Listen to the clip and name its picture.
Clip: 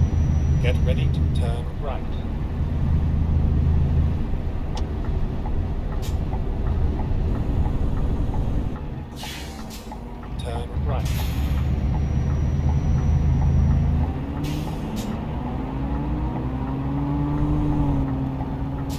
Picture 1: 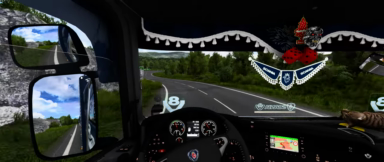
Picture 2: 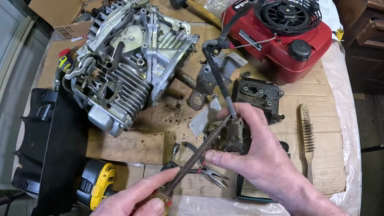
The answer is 1